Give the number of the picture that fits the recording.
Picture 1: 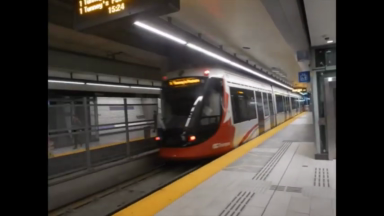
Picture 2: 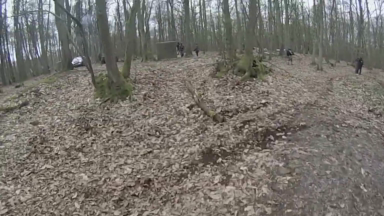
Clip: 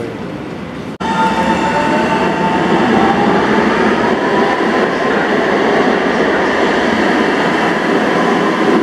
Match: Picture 1